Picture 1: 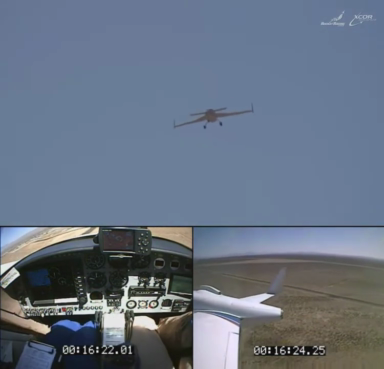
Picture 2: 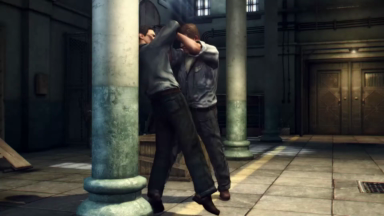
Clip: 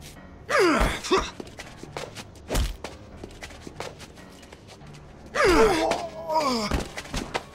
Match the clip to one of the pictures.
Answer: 2